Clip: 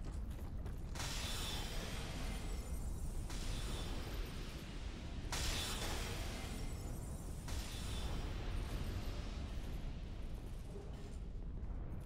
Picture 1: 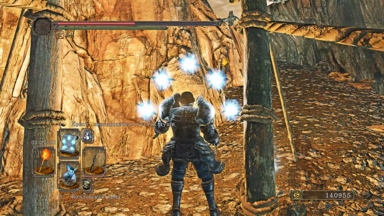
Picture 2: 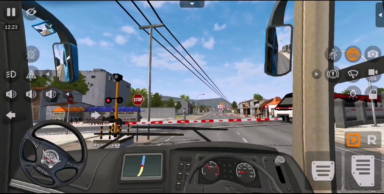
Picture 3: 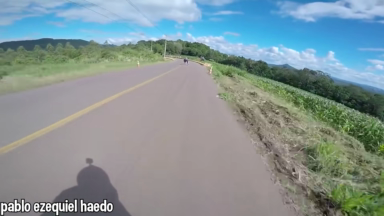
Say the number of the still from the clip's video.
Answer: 1